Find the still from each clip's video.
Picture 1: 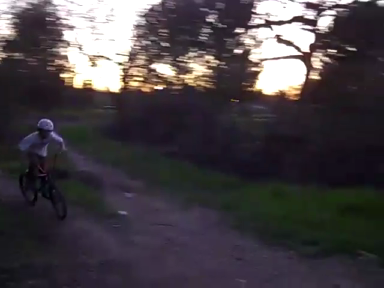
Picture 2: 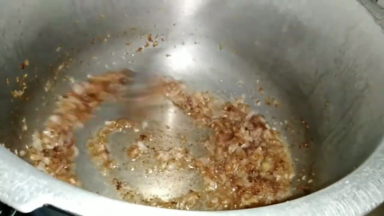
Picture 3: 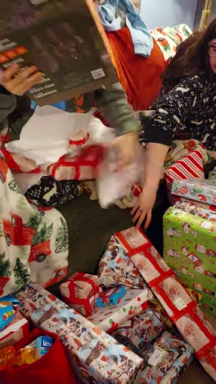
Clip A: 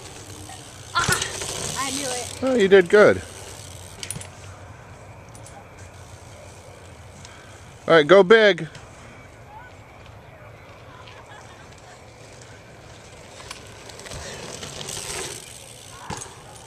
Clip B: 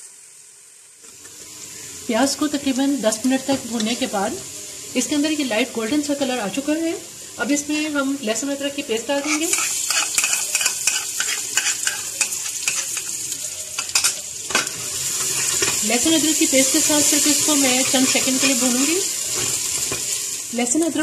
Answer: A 1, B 2